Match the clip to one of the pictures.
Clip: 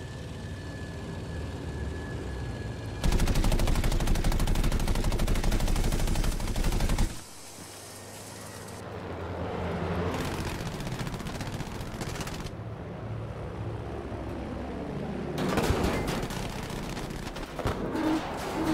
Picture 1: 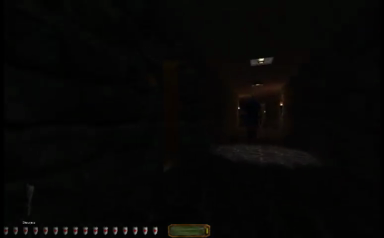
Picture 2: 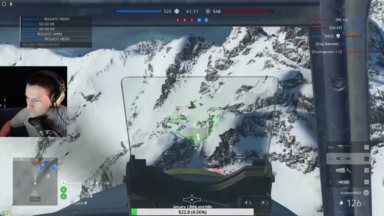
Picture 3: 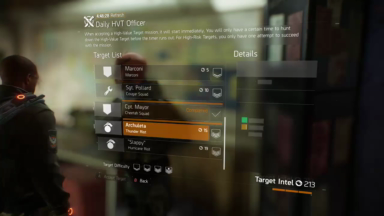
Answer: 2